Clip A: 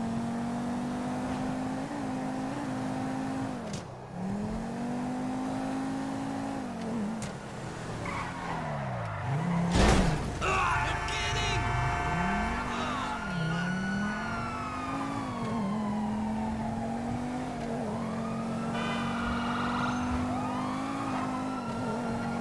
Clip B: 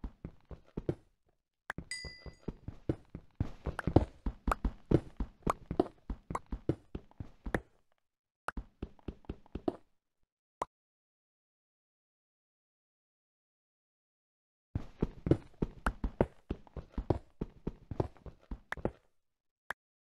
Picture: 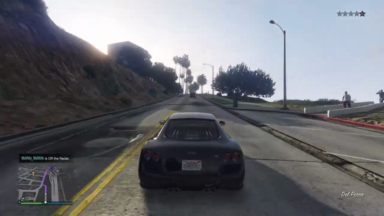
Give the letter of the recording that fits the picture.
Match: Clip A